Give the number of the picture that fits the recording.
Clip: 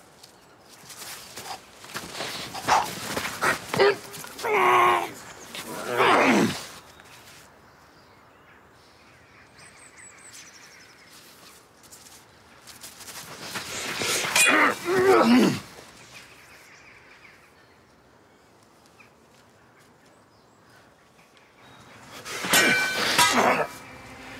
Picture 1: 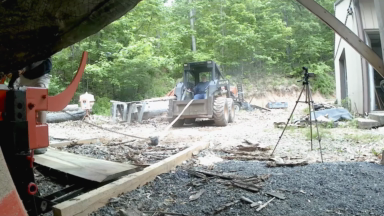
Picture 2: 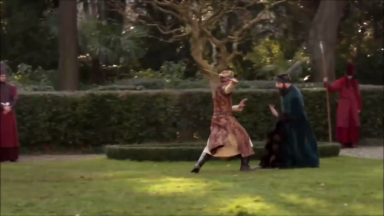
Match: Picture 2